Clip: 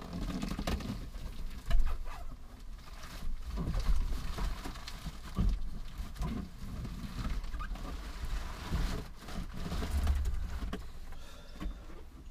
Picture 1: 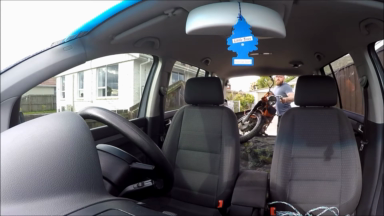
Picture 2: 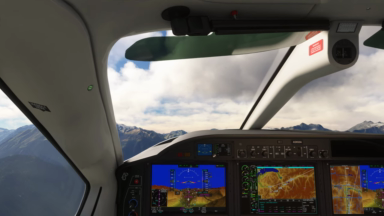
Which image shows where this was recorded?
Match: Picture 1